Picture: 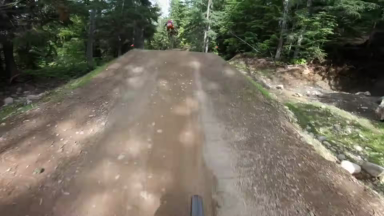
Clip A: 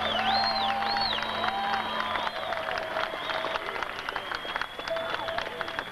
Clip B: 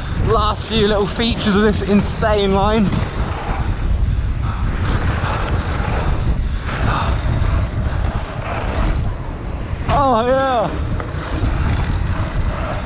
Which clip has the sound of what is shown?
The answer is B